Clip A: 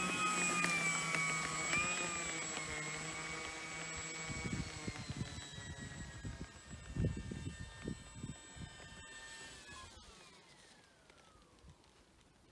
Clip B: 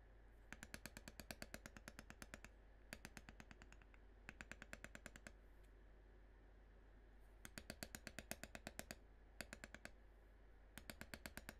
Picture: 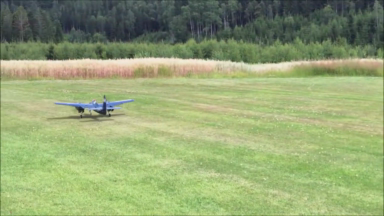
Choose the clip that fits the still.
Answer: A